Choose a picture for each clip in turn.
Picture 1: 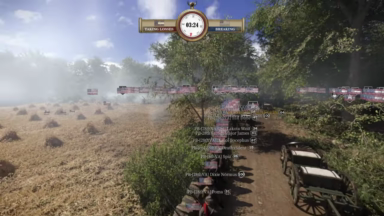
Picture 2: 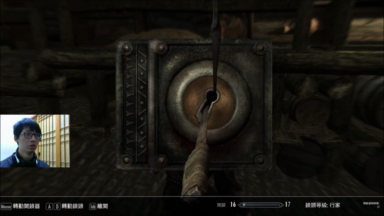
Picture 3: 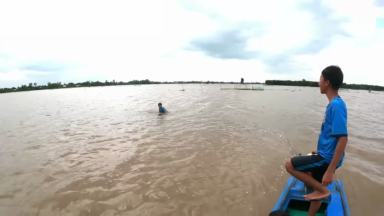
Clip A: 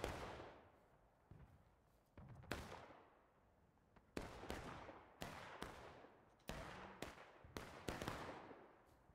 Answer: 1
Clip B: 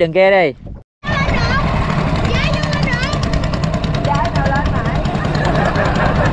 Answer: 3